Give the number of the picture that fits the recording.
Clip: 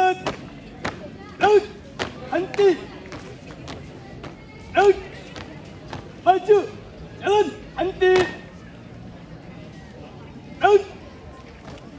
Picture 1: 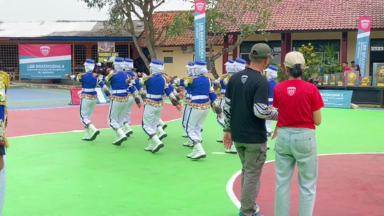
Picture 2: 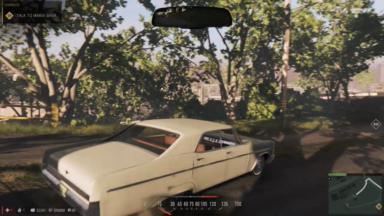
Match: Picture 1